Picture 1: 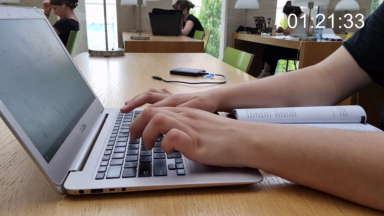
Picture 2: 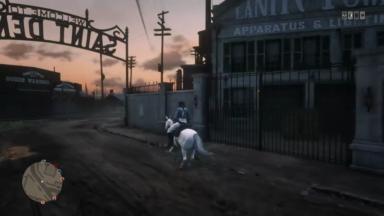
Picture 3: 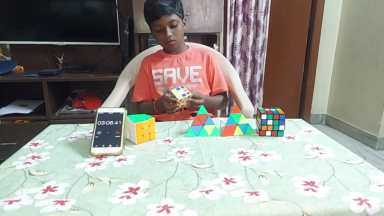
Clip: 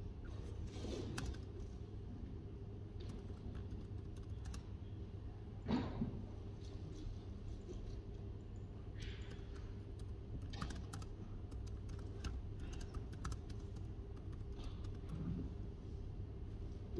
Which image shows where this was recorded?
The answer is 1